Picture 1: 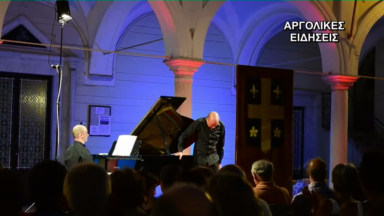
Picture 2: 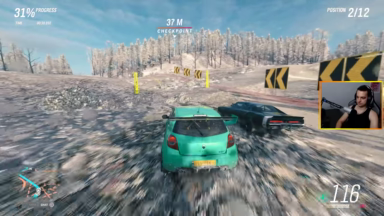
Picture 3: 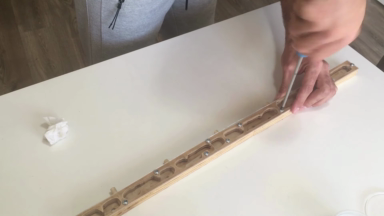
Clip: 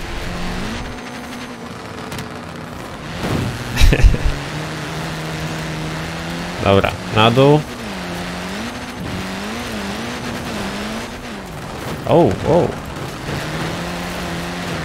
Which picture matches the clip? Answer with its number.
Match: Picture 2